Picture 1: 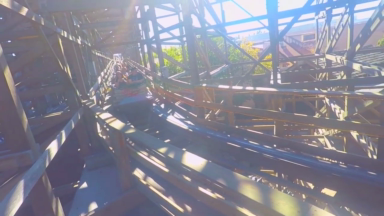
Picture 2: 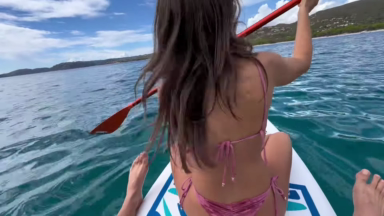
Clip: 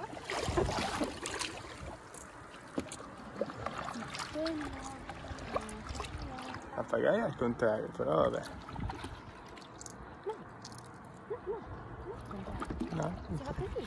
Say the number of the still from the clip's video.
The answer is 2